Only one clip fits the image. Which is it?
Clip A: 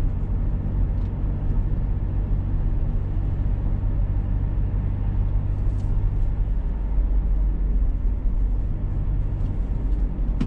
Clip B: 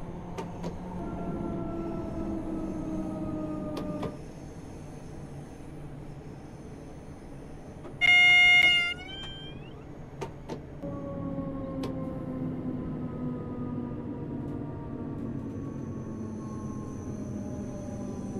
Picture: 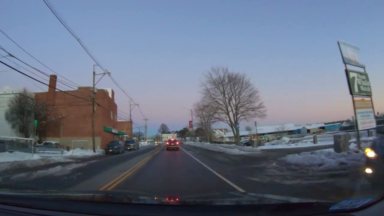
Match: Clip A